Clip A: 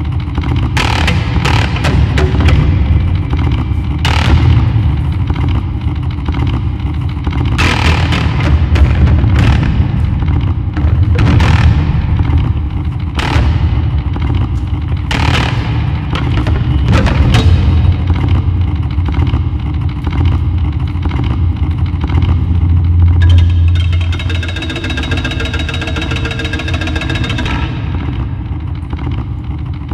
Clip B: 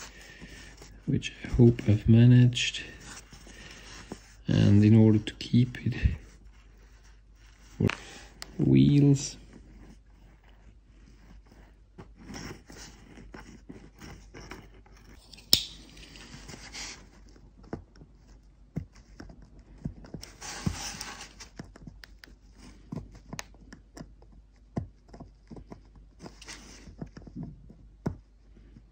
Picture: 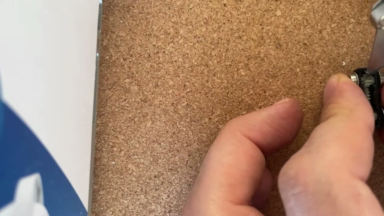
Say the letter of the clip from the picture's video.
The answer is B